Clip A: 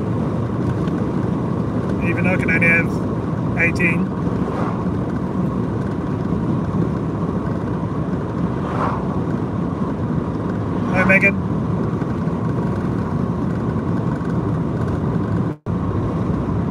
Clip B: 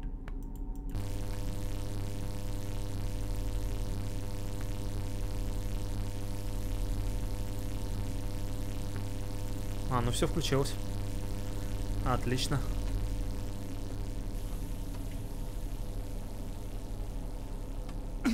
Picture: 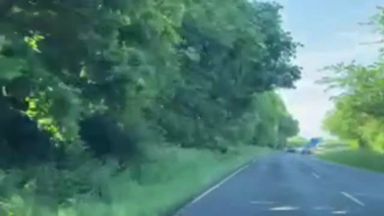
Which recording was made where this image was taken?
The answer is A